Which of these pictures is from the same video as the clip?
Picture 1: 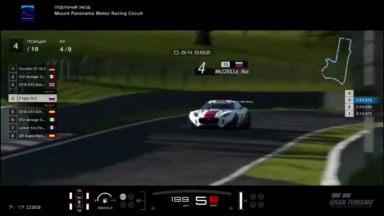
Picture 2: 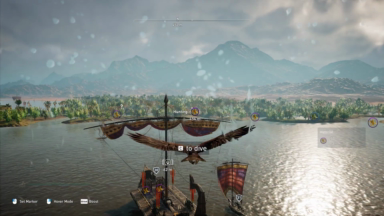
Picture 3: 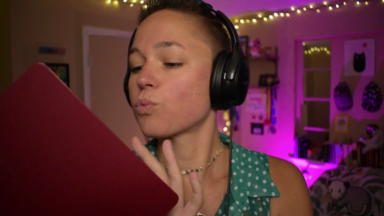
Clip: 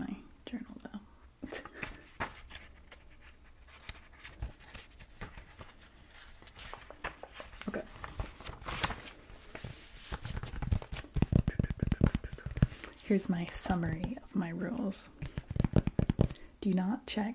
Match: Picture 3